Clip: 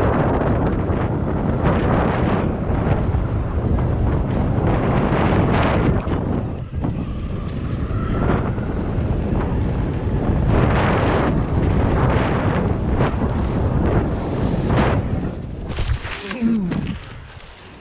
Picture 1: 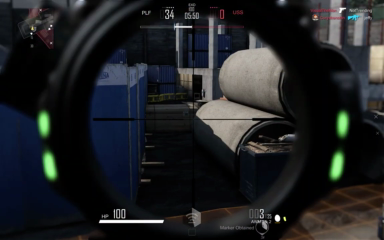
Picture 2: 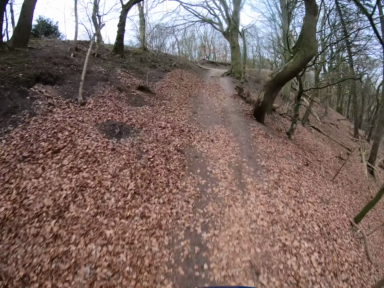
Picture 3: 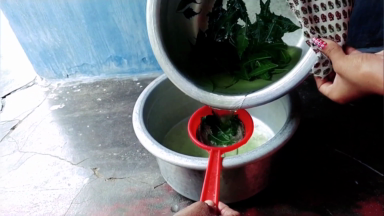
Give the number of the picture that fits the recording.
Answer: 2